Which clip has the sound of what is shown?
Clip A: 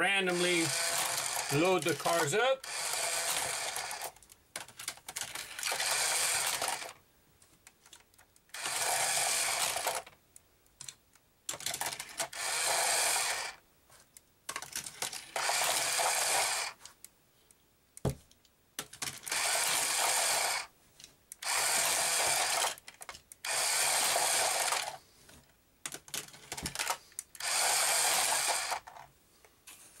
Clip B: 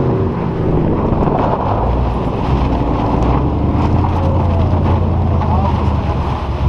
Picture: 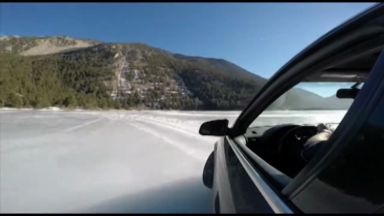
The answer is B